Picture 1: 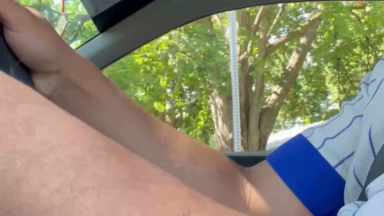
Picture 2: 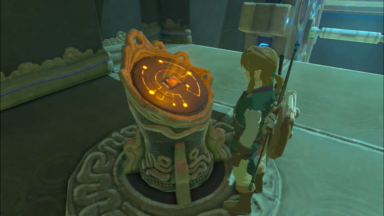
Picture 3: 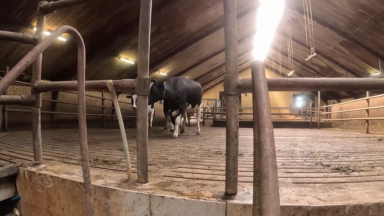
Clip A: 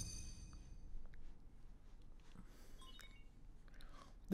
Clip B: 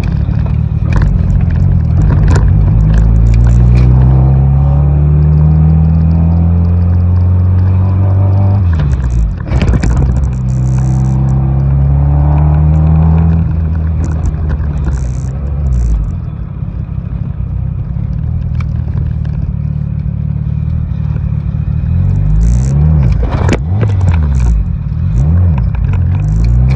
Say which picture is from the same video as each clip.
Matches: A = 2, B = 1